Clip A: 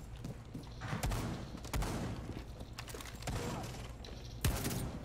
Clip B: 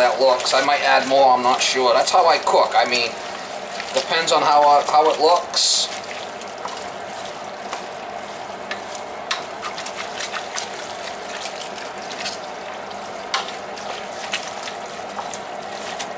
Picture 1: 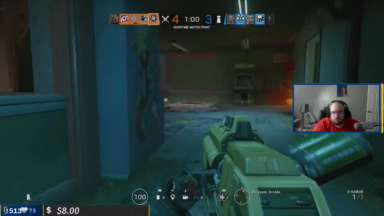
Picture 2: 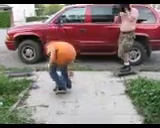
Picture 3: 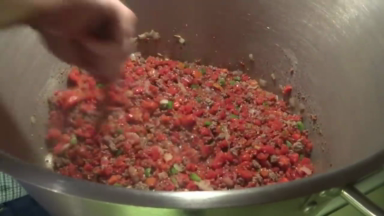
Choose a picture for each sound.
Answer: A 1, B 3